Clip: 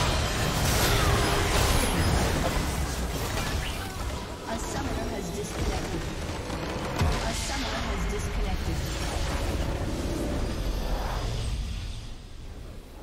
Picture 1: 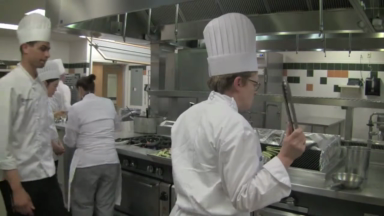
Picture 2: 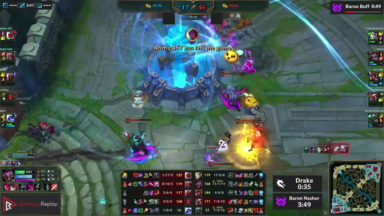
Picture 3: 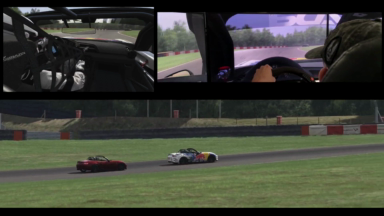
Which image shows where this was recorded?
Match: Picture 2